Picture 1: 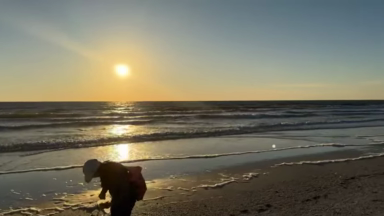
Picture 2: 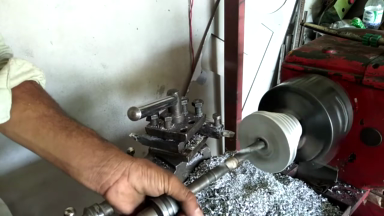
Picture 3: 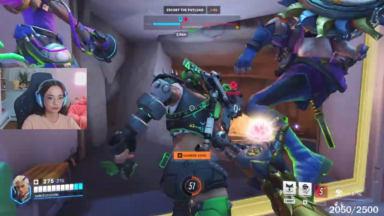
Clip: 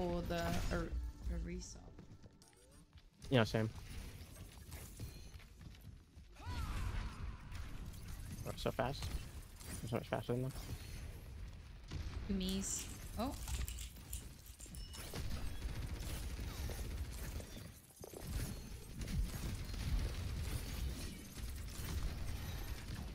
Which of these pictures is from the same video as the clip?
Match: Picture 3